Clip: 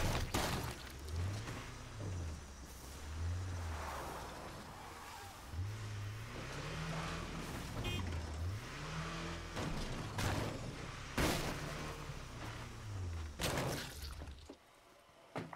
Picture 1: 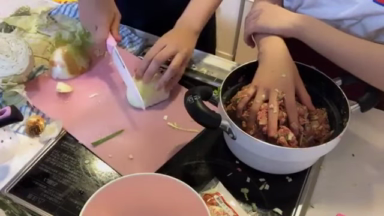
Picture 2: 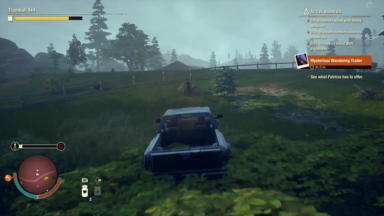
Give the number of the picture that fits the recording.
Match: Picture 2